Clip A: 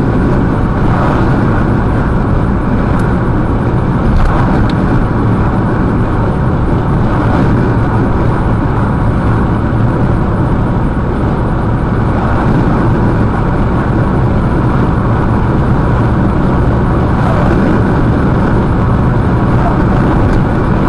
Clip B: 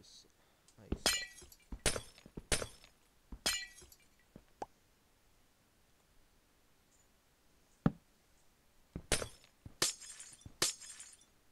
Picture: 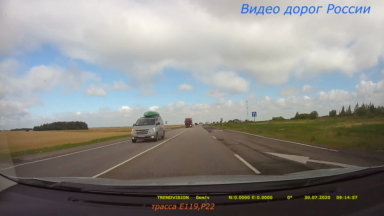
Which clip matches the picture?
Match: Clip A